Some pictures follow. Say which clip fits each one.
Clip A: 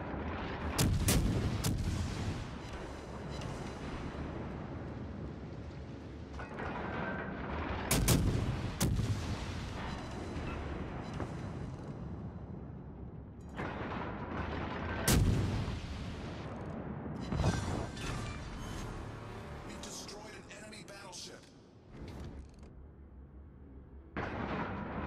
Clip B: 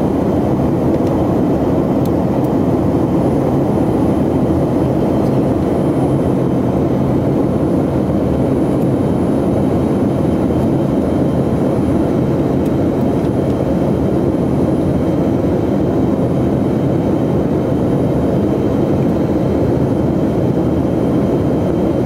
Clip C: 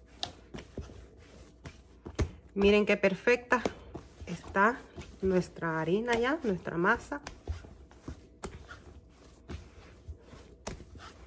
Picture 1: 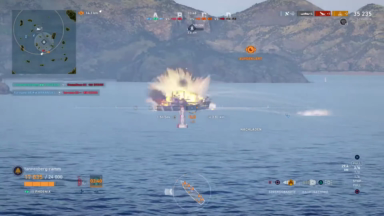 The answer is A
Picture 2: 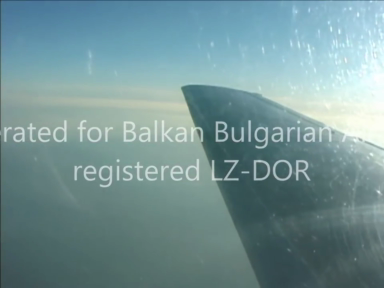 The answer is B